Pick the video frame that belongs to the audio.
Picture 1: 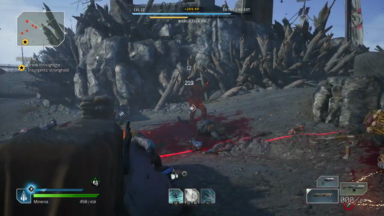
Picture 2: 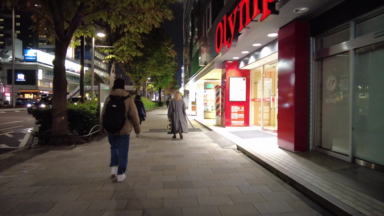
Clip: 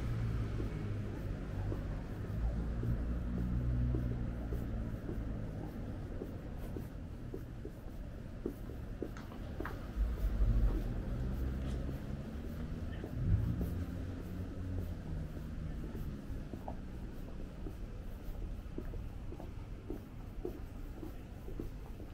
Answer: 2